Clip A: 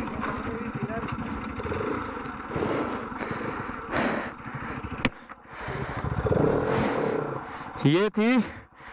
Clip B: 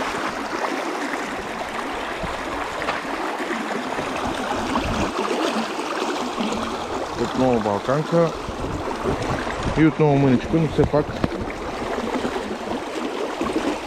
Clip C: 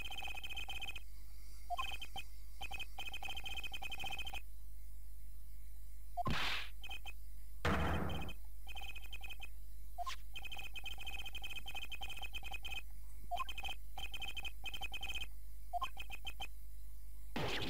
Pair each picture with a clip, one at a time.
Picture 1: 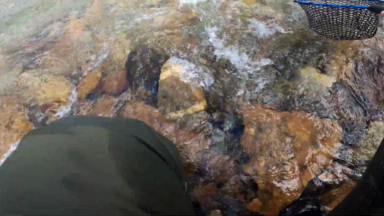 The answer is B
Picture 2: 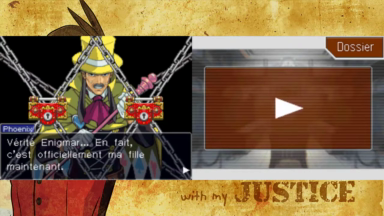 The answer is C